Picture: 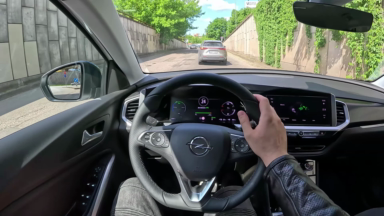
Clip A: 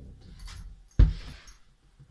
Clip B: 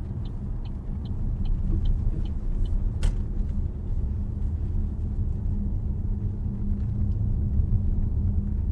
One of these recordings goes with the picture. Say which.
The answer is B